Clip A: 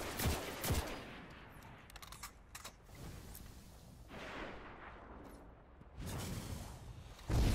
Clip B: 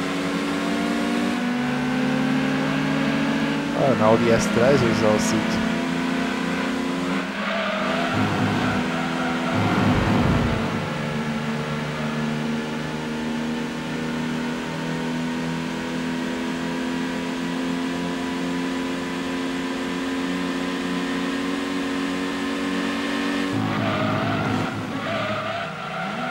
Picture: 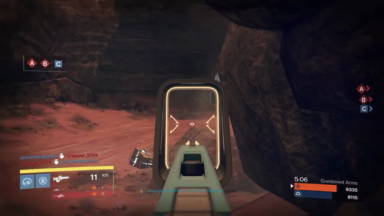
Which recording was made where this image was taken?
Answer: A